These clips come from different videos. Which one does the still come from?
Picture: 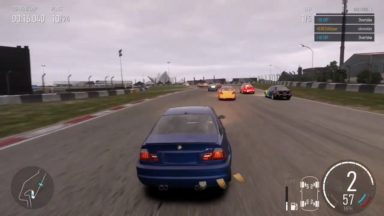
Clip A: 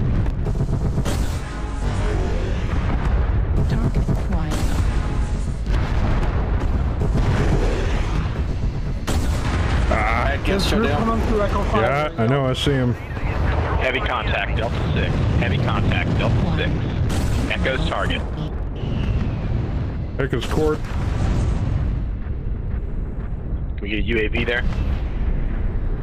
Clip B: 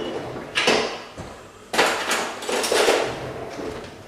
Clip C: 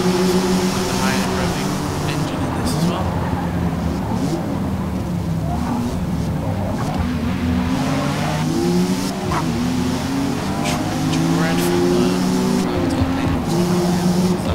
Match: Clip C